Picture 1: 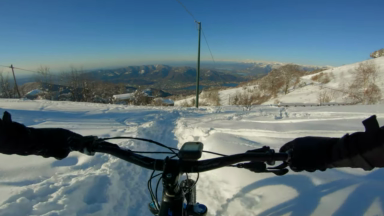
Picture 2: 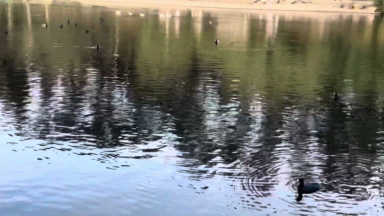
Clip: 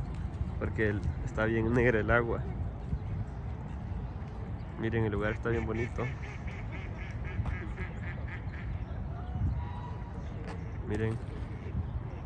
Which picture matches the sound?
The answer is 2